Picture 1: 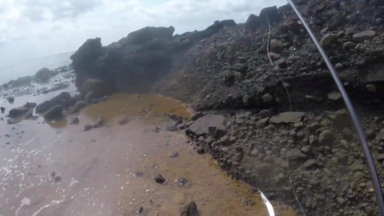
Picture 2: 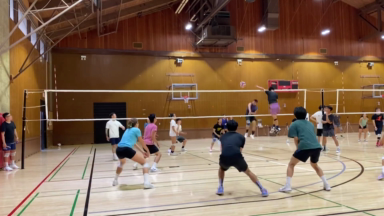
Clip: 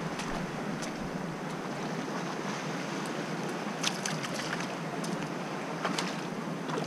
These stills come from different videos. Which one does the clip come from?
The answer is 1